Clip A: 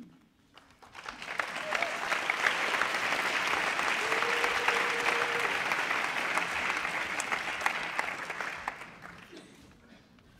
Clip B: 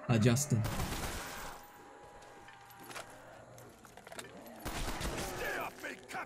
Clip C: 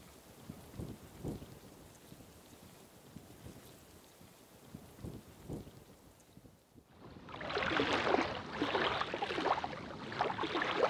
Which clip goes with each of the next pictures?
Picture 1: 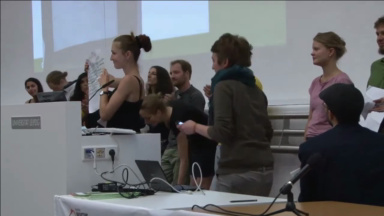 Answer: A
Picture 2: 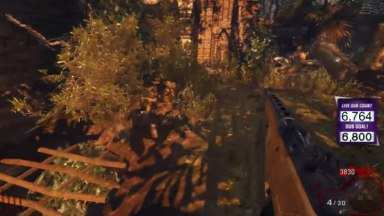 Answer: B